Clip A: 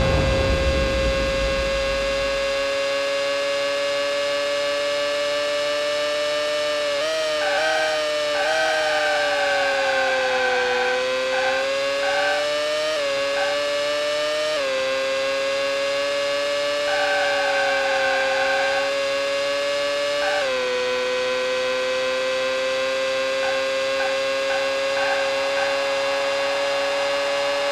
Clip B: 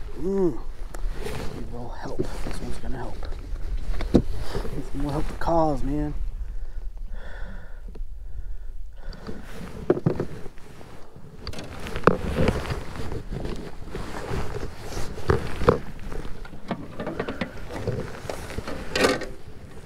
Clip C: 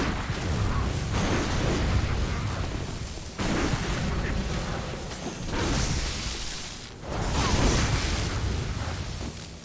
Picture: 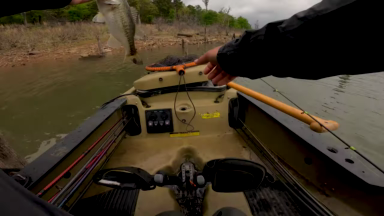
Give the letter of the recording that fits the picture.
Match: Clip B